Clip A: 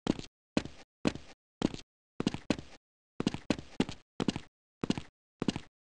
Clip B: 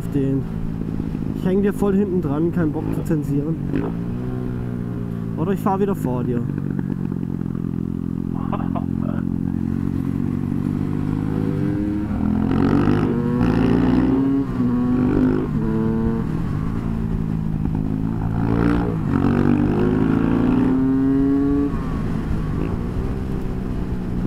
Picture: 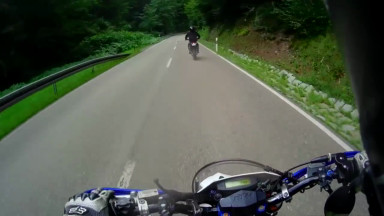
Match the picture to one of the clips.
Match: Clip B